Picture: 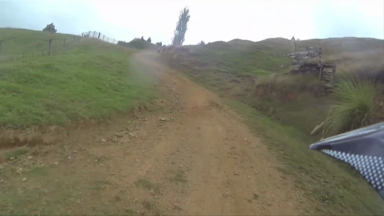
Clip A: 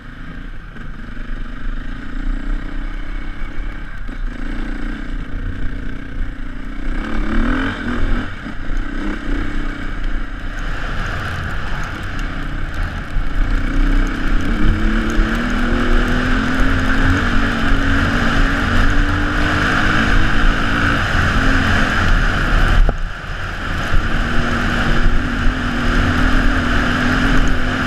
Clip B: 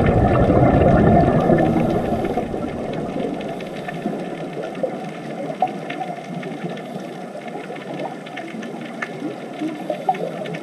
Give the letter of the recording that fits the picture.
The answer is A